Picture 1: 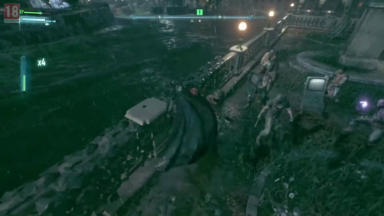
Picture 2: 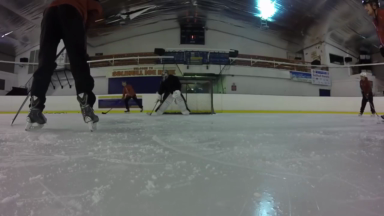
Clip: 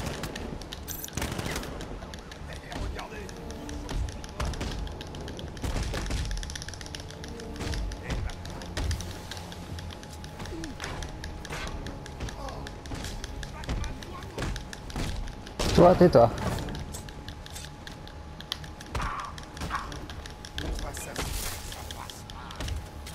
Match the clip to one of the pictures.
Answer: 1